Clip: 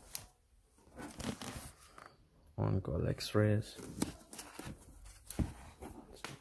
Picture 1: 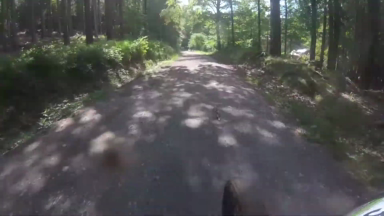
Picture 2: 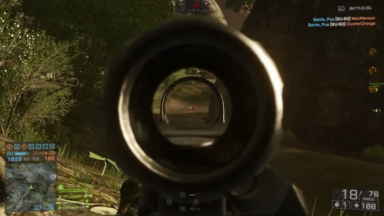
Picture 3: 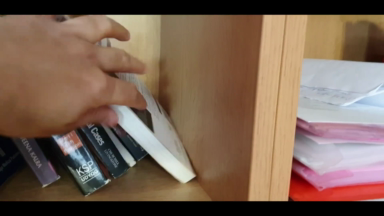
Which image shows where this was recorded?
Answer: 3